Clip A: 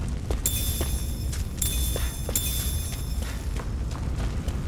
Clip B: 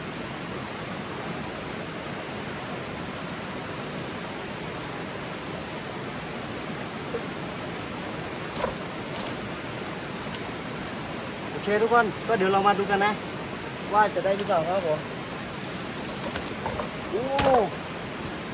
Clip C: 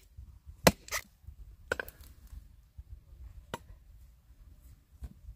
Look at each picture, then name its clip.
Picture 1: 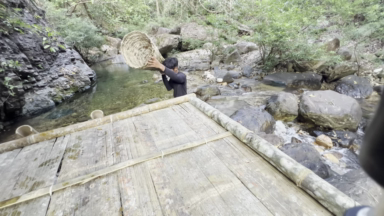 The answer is B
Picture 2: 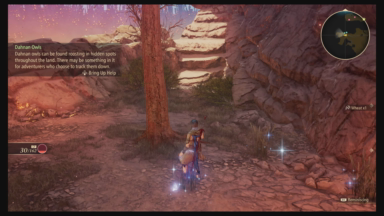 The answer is A